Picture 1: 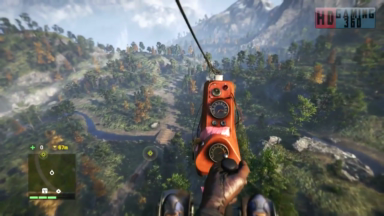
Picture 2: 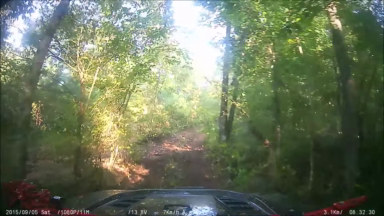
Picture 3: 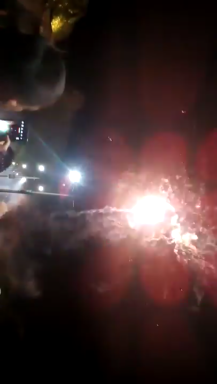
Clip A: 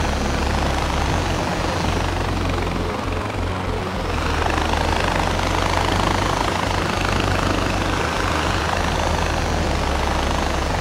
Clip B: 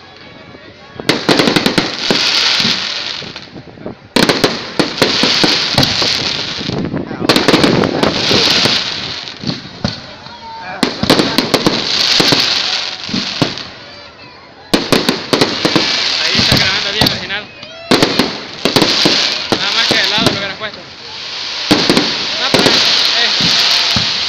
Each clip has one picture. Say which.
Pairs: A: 1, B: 3